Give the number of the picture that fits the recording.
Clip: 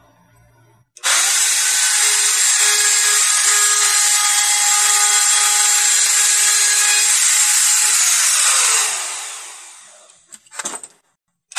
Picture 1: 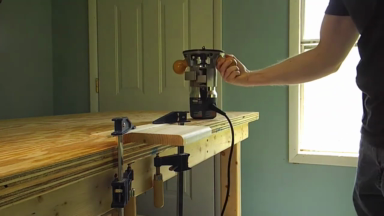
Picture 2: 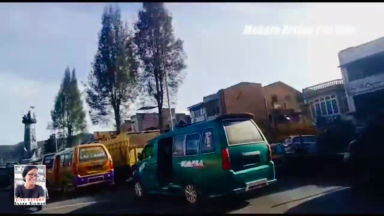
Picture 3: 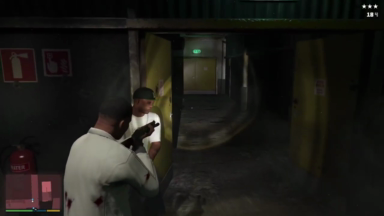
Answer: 1